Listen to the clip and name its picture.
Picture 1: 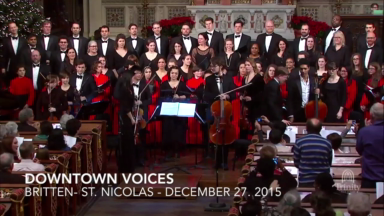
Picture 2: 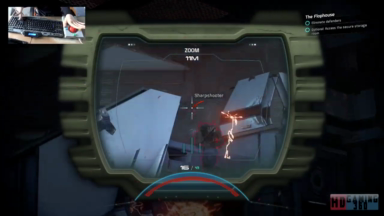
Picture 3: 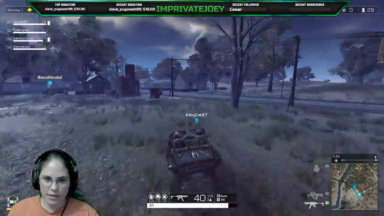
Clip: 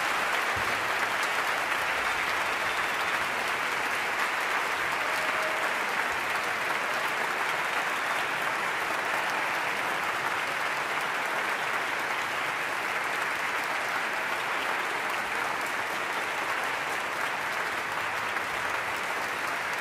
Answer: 1